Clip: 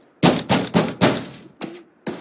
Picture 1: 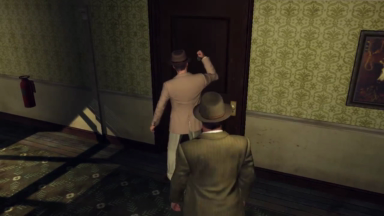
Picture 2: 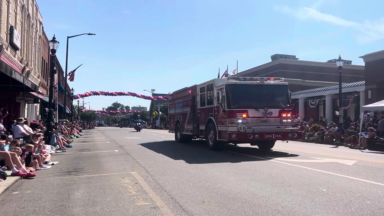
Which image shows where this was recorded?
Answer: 1